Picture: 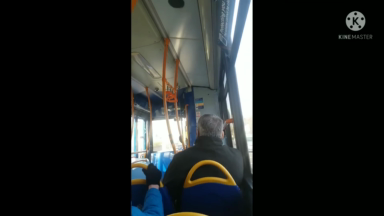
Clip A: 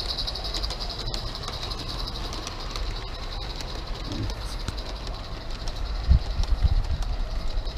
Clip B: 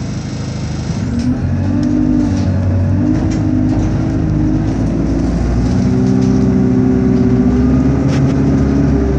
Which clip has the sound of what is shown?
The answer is B